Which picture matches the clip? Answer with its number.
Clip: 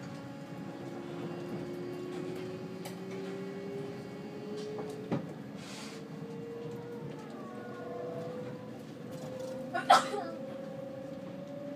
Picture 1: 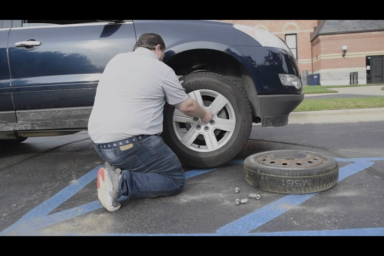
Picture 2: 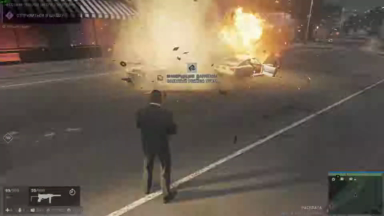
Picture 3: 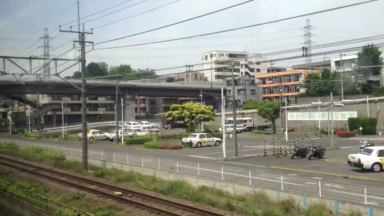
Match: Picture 3